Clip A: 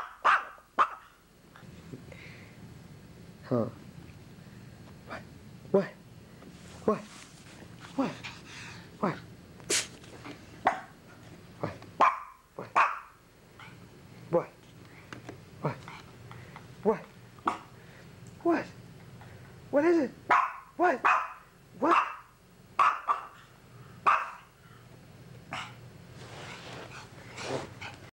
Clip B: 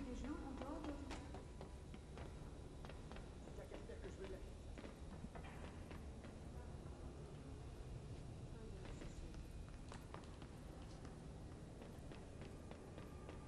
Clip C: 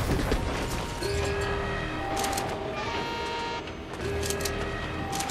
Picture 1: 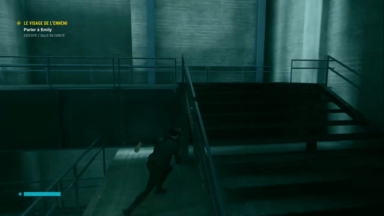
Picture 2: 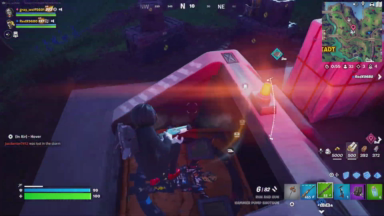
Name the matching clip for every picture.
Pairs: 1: B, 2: C